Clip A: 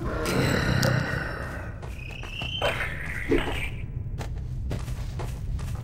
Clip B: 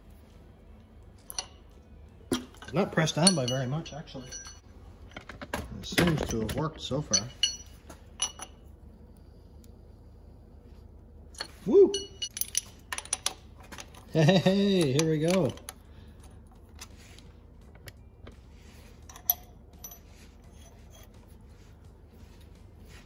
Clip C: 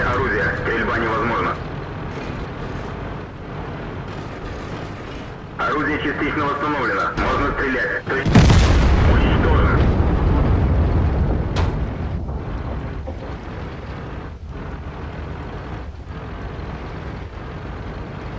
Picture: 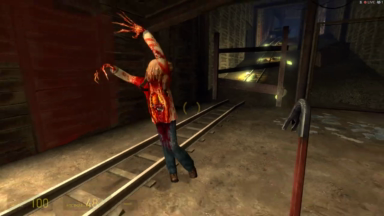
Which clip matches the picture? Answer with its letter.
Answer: A